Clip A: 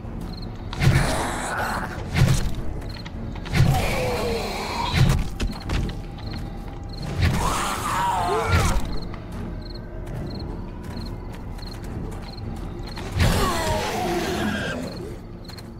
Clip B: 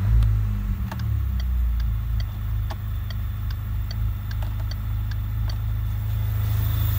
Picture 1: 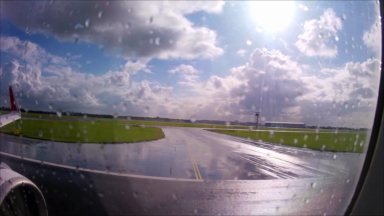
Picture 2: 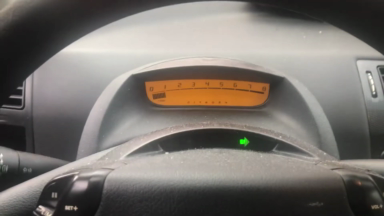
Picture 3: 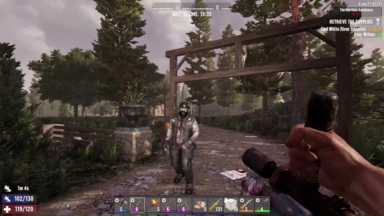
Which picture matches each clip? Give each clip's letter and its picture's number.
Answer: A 3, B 2